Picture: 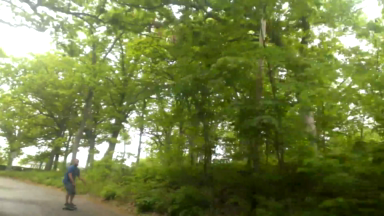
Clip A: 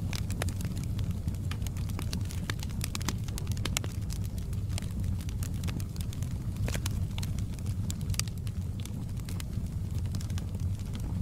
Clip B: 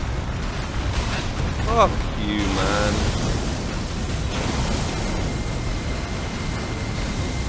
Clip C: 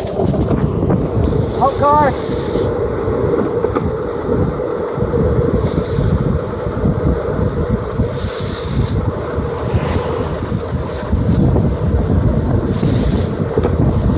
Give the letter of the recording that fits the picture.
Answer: C